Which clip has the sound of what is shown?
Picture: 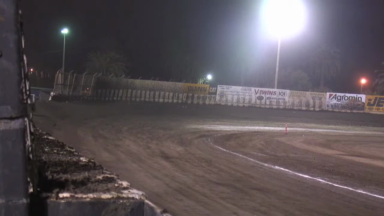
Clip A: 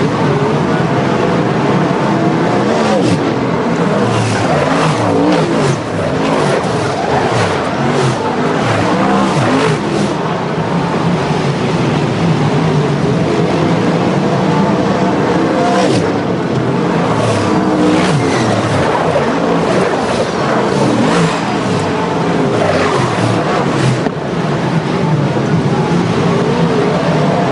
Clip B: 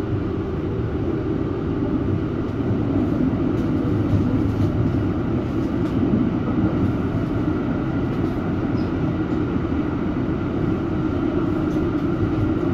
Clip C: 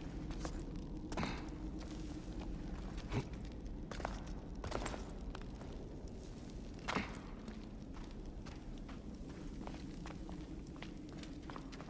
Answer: A